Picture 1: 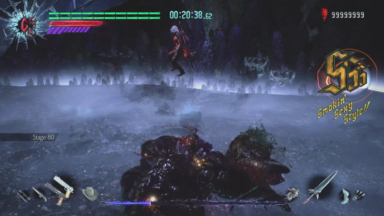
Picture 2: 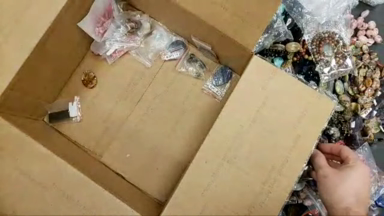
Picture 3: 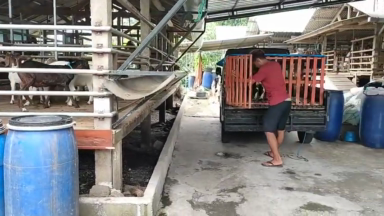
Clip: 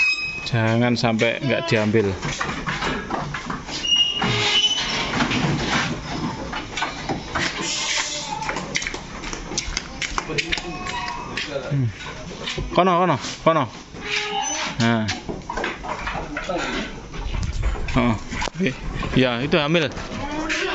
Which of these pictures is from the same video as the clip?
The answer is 3